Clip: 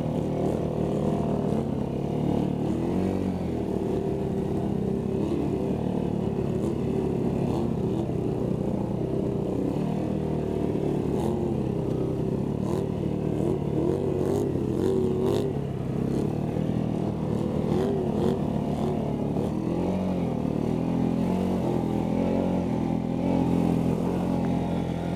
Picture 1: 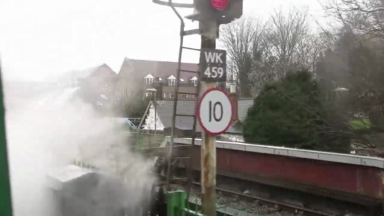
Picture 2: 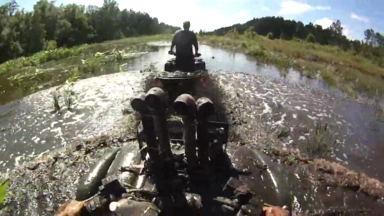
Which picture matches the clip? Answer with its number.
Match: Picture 2